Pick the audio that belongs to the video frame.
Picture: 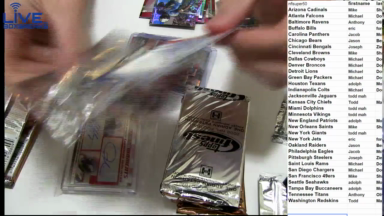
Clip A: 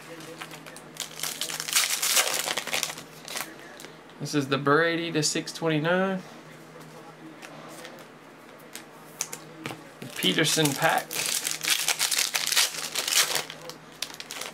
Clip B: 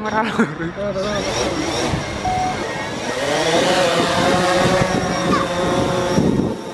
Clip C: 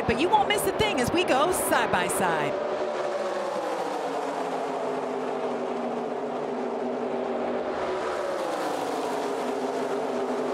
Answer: A